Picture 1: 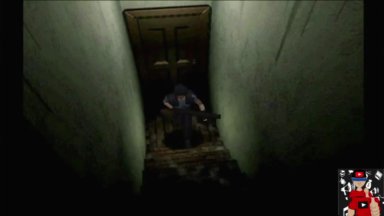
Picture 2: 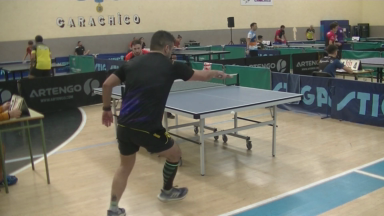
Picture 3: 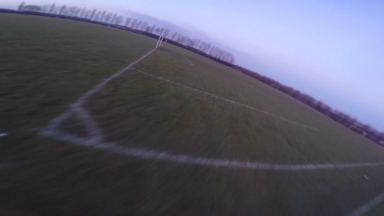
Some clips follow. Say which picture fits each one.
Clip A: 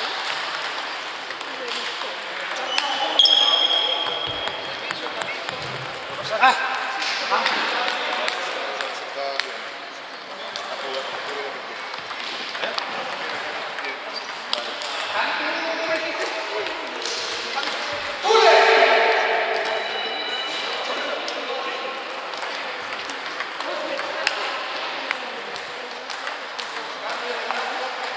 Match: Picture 2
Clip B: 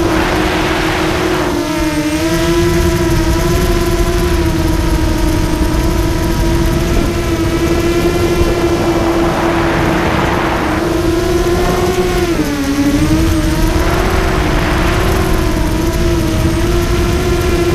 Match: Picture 3